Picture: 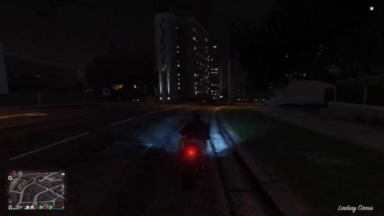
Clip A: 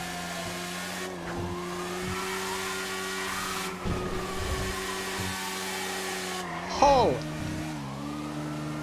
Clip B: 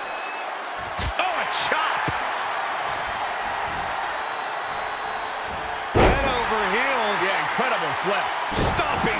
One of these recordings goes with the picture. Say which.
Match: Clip A